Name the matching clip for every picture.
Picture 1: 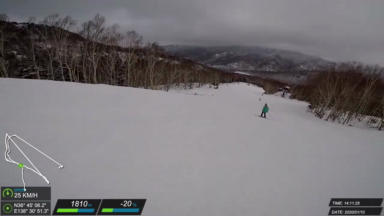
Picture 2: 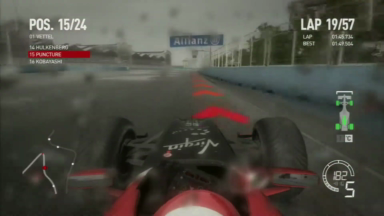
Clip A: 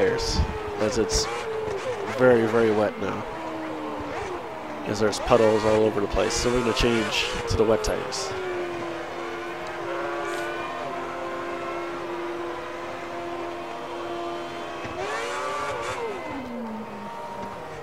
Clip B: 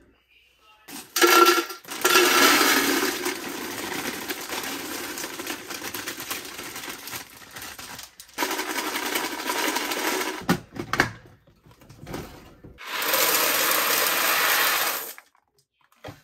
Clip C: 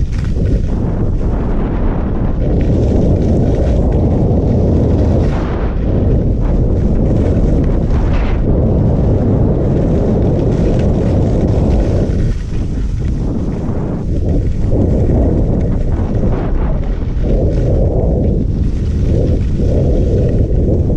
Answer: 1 C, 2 A